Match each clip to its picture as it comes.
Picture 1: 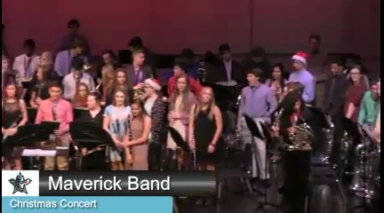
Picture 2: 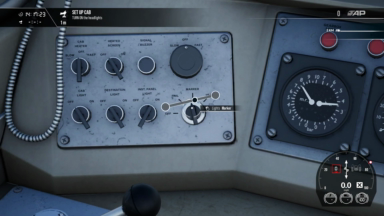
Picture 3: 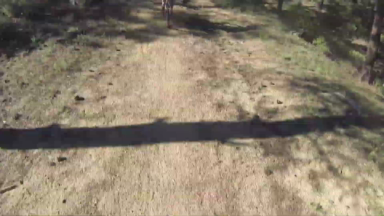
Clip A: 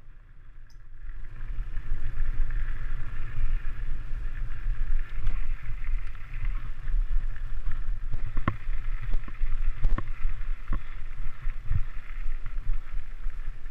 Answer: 3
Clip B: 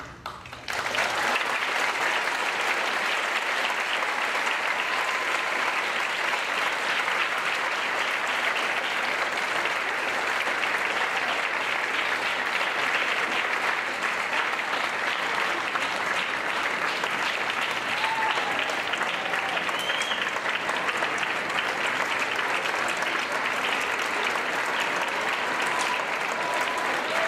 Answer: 1